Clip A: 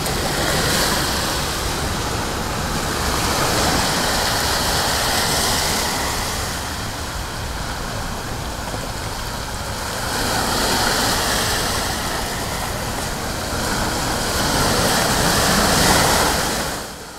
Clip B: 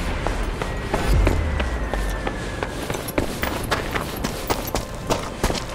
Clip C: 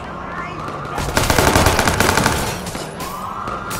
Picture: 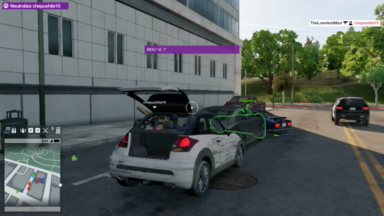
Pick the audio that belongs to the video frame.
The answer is C